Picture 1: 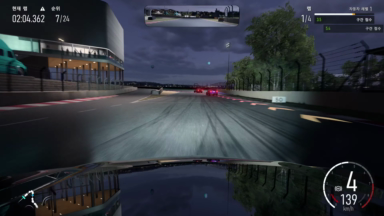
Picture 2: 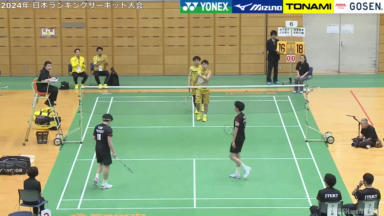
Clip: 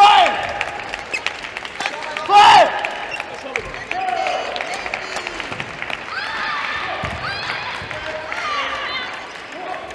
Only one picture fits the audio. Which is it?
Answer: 2